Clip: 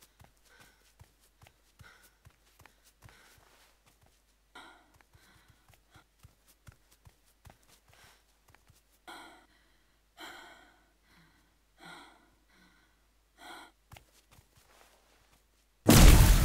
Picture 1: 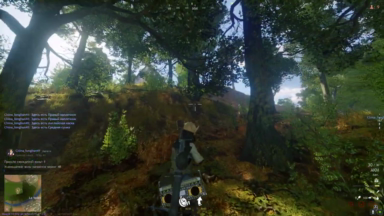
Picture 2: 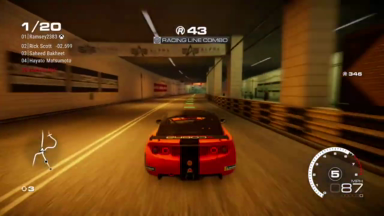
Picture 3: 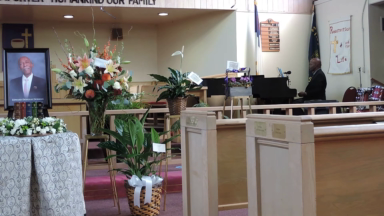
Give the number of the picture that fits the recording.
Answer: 1